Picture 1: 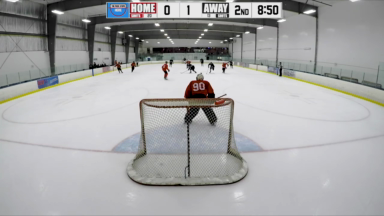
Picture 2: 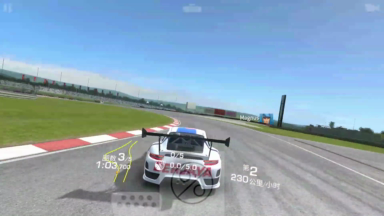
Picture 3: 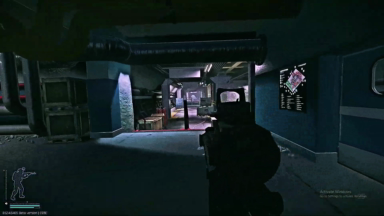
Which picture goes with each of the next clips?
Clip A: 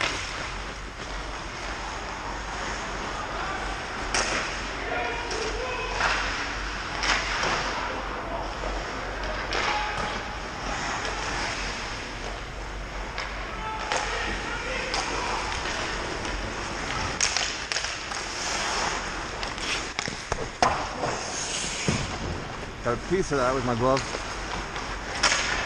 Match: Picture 1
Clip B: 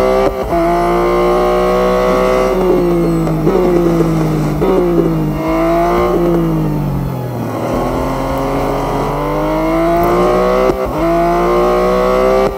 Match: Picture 2